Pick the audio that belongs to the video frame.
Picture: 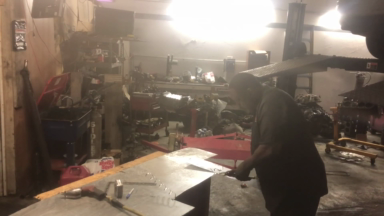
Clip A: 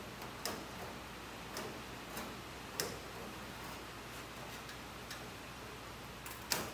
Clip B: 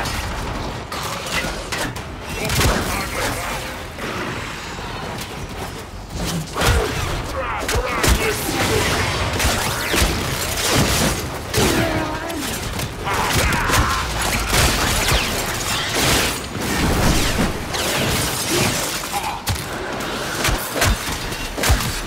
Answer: A